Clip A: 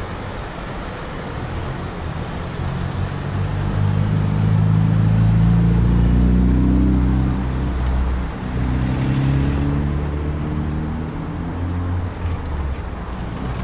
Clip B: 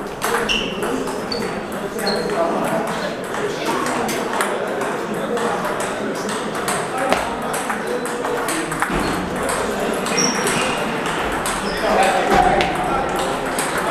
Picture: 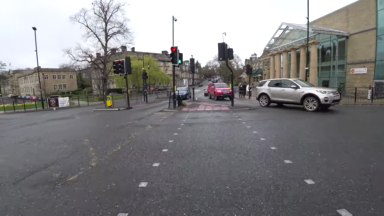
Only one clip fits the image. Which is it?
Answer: A